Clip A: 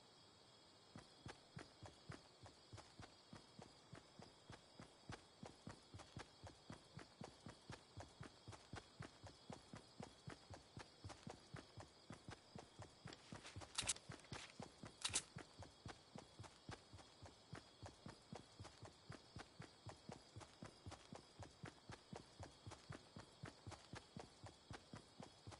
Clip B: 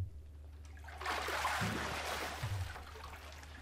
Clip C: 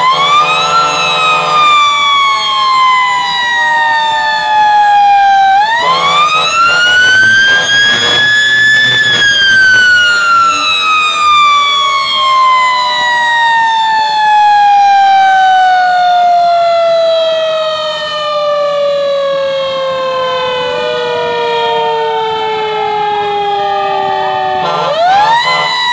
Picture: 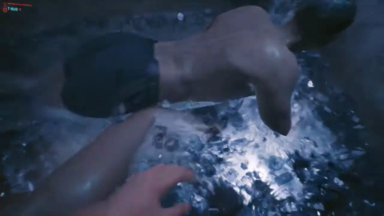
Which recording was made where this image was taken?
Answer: B